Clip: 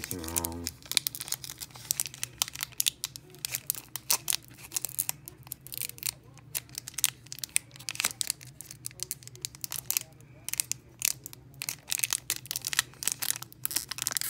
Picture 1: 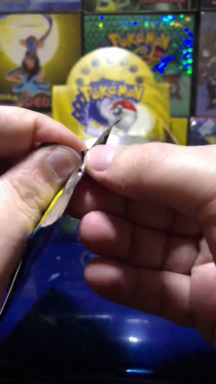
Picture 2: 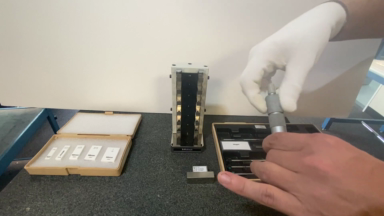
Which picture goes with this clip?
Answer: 1